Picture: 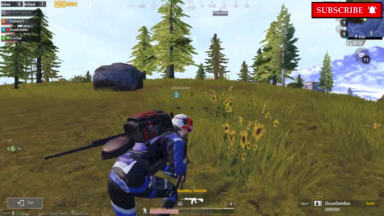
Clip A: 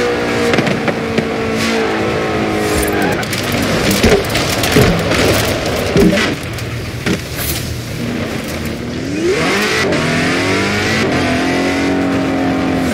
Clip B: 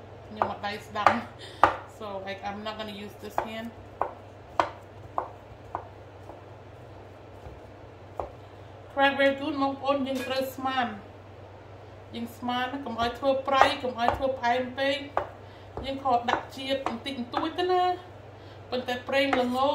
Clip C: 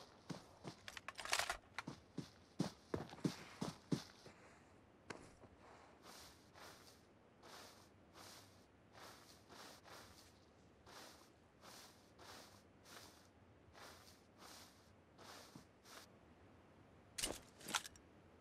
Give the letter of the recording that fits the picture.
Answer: C